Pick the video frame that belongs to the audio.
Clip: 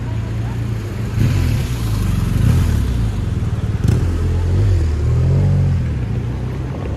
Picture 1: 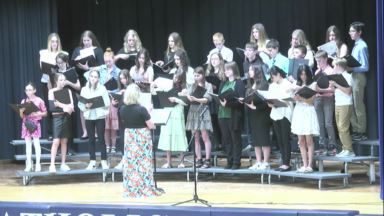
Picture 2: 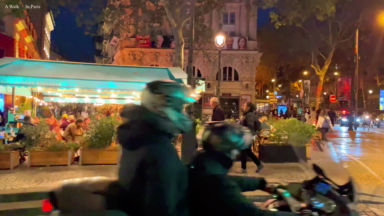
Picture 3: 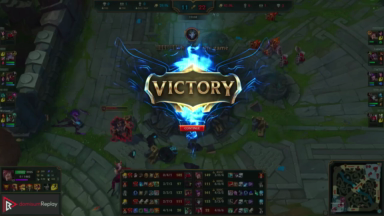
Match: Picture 2